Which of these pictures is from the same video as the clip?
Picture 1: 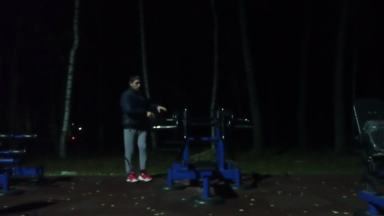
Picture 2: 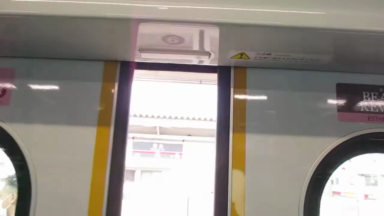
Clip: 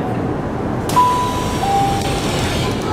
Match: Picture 2